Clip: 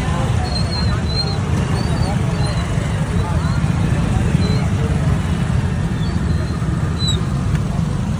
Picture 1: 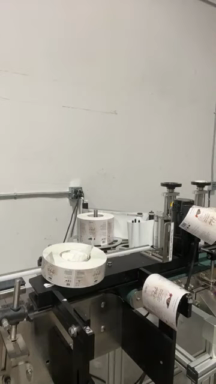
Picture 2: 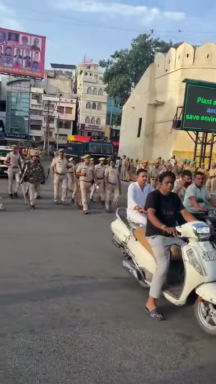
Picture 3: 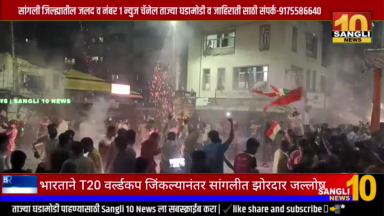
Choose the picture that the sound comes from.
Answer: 2